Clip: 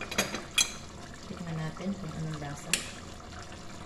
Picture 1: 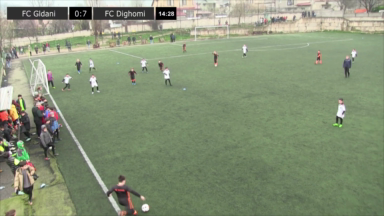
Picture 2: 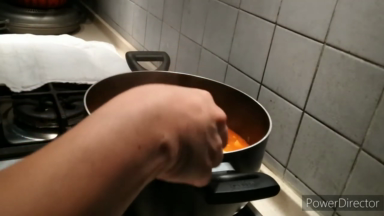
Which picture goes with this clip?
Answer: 2